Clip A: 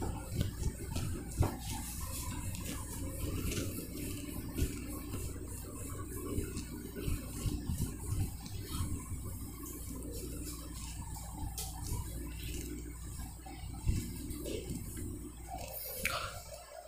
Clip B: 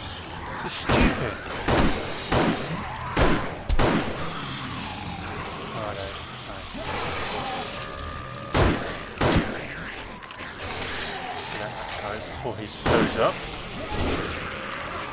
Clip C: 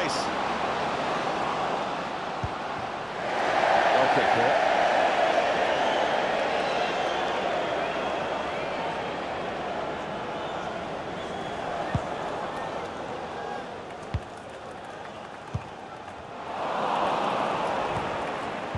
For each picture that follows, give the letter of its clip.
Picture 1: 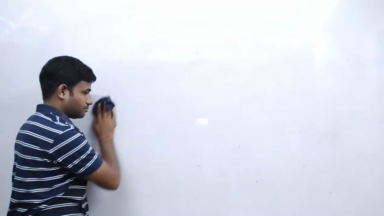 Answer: A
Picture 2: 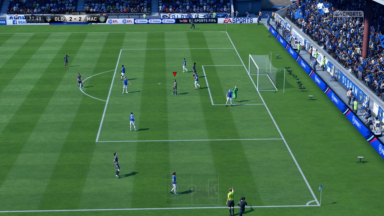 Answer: C